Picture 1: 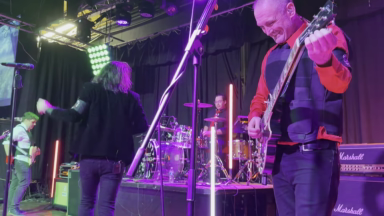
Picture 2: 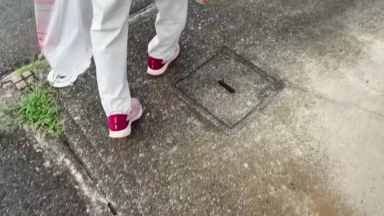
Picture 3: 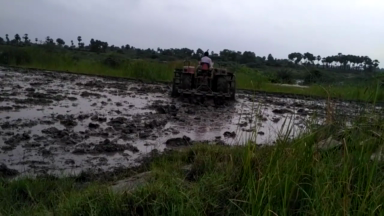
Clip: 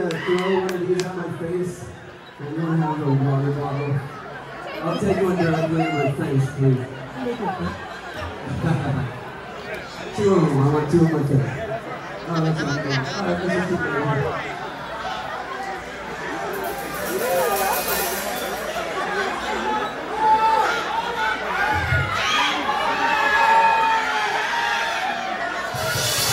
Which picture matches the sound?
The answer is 1